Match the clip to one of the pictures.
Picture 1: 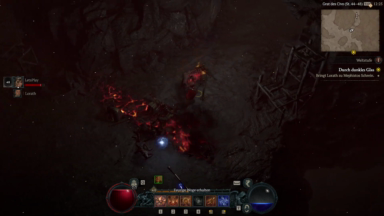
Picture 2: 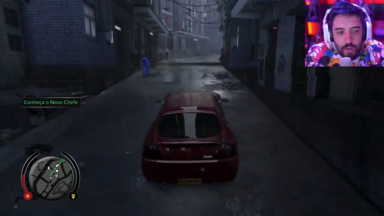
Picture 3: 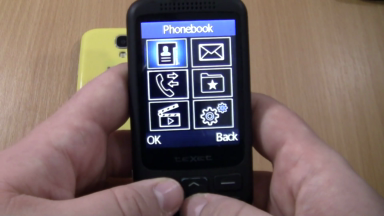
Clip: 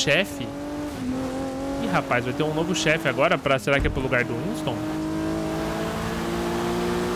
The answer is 2